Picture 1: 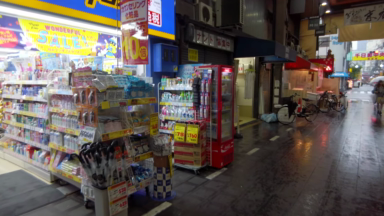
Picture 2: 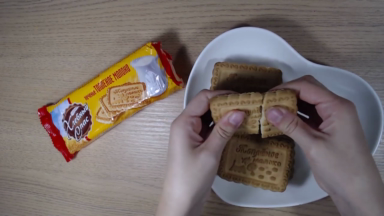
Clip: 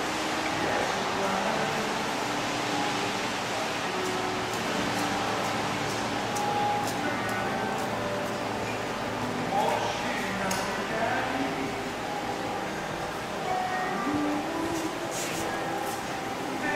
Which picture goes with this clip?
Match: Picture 1